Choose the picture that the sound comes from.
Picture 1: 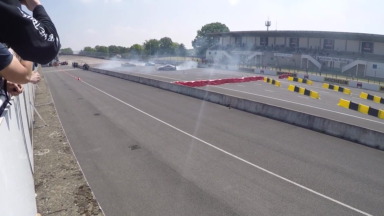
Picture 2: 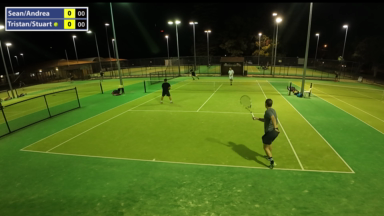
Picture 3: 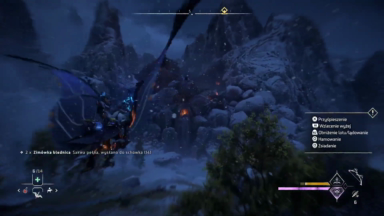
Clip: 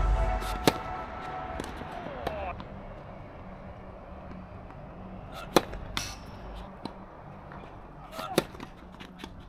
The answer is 2